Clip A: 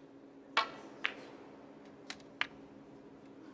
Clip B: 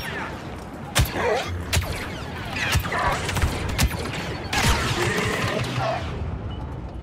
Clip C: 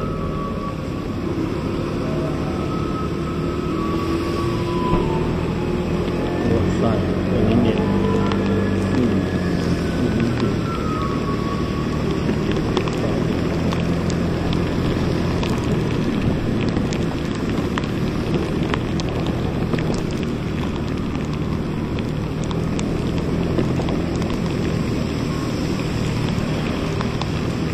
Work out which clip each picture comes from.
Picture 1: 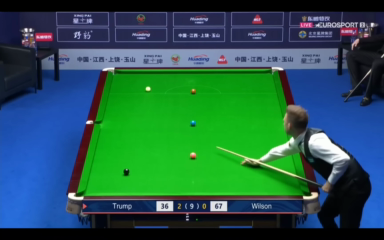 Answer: A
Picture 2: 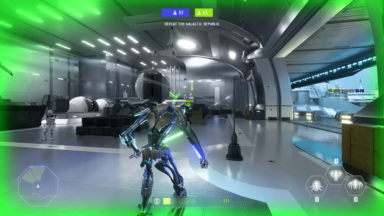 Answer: B